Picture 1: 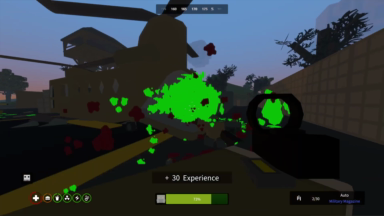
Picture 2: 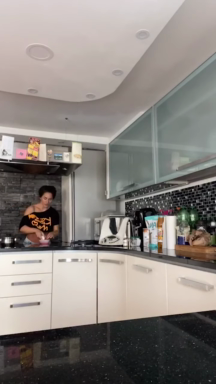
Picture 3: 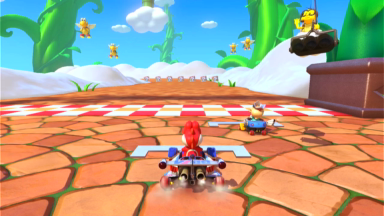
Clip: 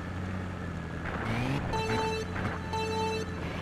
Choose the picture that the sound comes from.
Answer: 3